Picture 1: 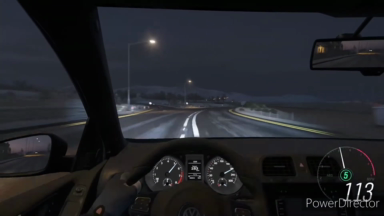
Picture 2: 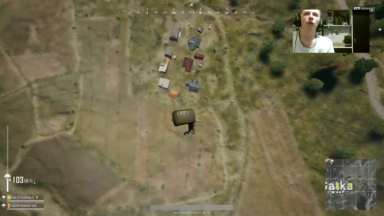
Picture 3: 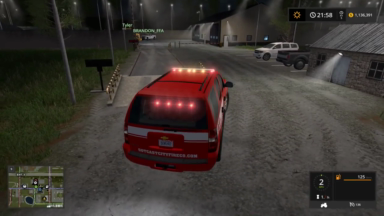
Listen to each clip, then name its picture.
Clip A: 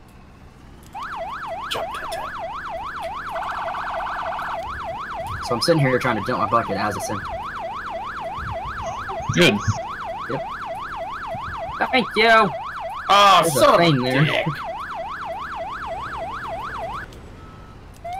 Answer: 3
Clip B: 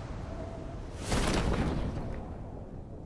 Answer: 2